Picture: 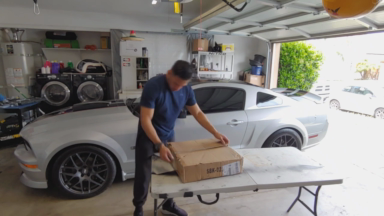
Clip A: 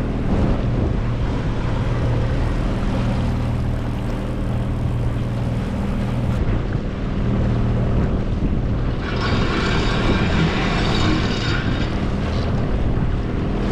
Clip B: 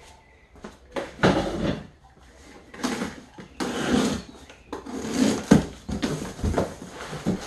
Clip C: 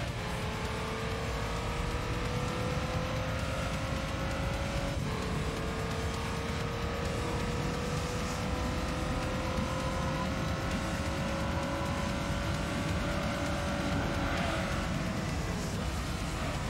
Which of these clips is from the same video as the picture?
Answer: B